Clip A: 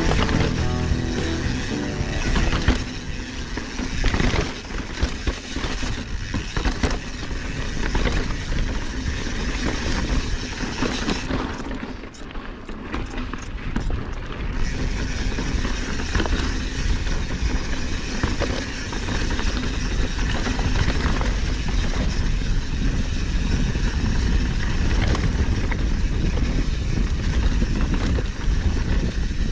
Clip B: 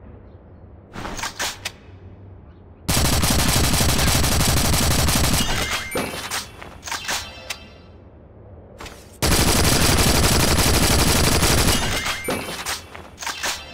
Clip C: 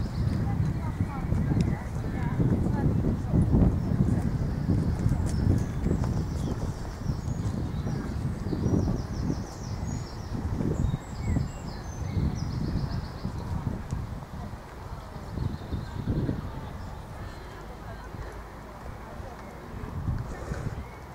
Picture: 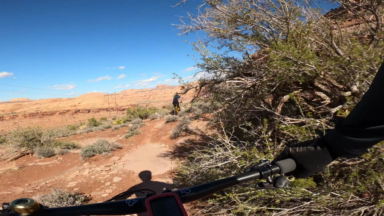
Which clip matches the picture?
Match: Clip A